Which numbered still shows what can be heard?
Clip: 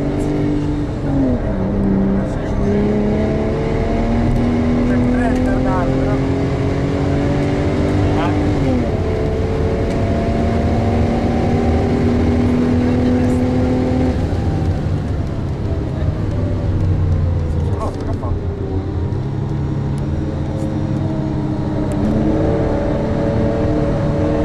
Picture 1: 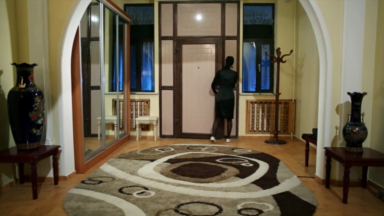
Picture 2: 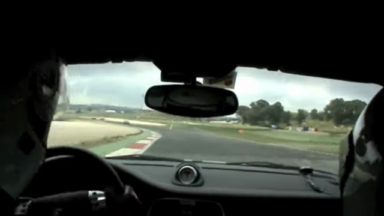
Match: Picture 2